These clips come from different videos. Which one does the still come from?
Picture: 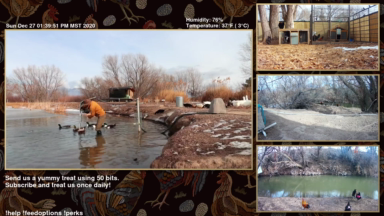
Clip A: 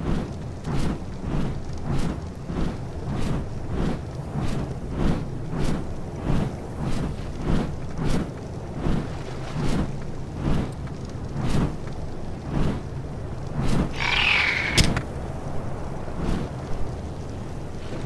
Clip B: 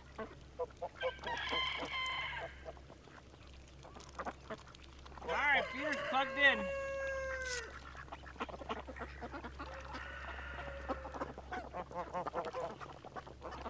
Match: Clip B